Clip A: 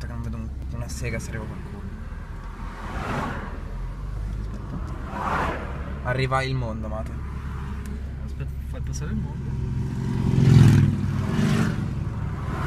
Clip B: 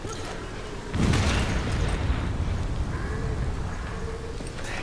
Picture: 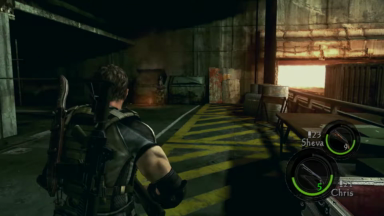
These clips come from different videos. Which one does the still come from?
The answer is B